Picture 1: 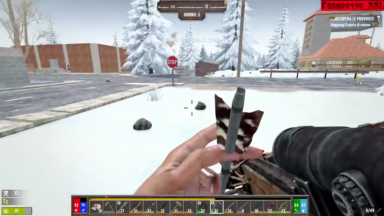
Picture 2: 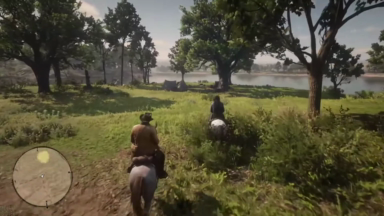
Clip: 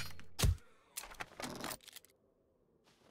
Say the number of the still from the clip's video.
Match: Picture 1